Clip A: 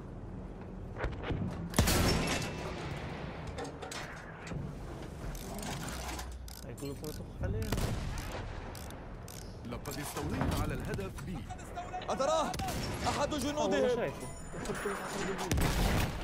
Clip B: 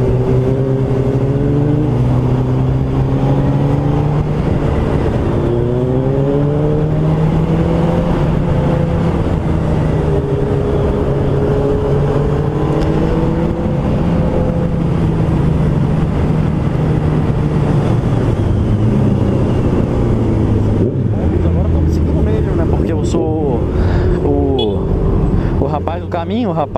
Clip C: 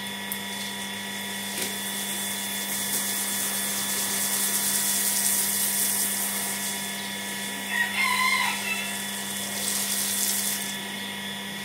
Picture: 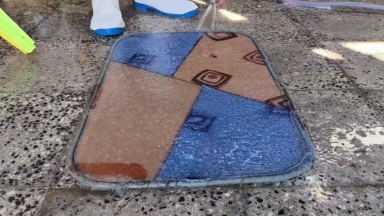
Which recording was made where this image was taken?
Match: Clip C